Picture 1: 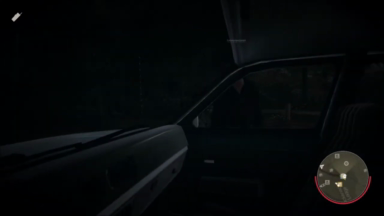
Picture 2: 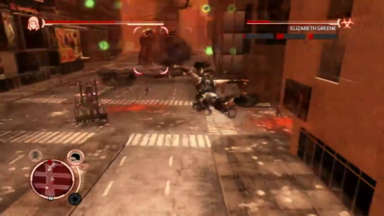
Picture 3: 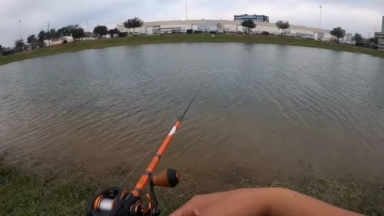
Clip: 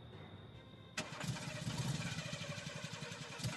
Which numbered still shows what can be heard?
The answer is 1